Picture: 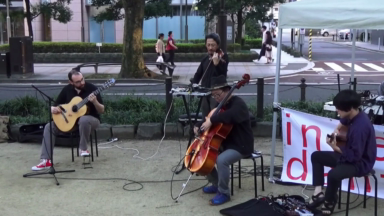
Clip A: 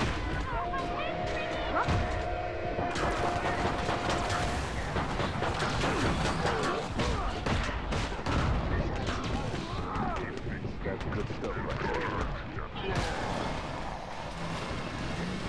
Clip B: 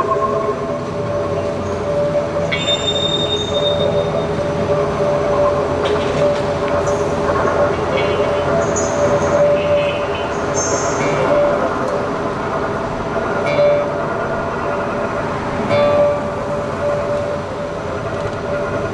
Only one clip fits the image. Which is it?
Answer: B